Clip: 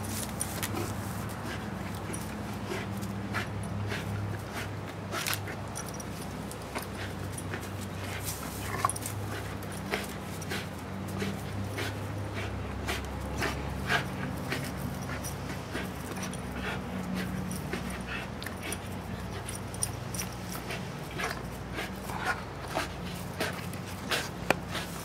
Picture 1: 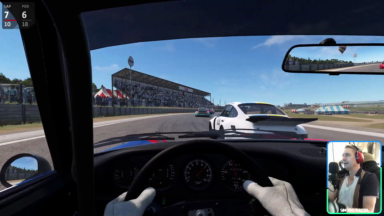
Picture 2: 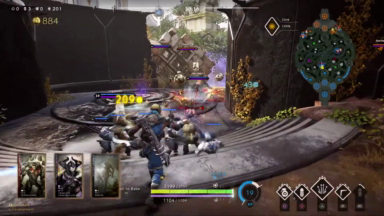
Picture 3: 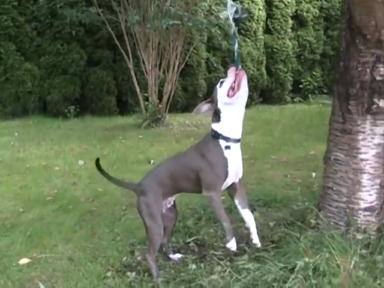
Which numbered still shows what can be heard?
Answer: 3